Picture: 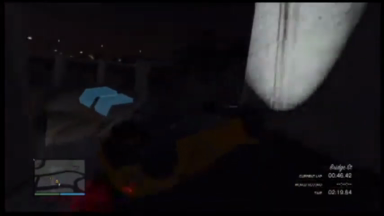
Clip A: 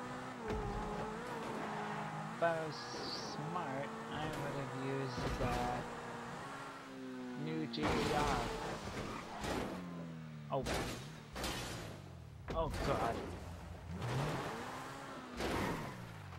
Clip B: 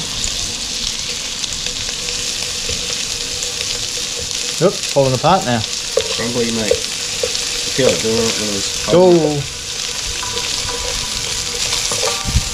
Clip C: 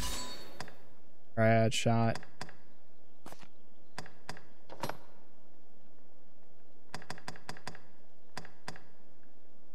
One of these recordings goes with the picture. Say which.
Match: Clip A